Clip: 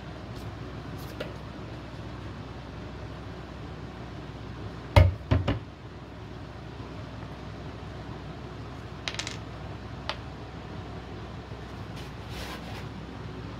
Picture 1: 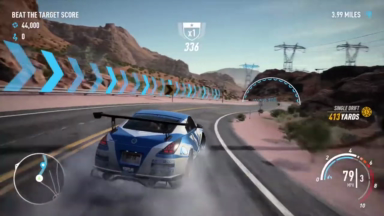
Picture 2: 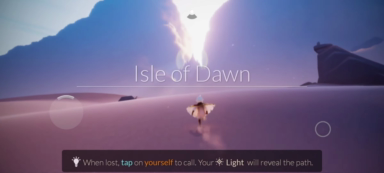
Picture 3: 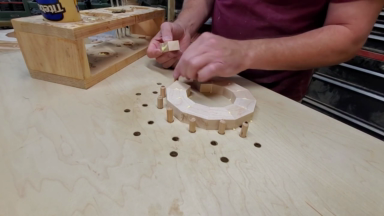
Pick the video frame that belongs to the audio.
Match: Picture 3